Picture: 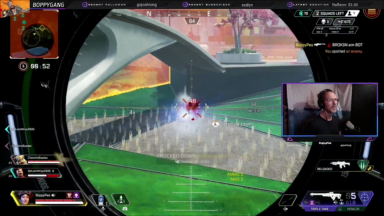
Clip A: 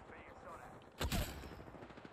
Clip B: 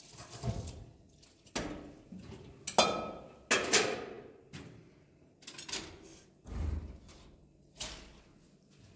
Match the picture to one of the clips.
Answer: A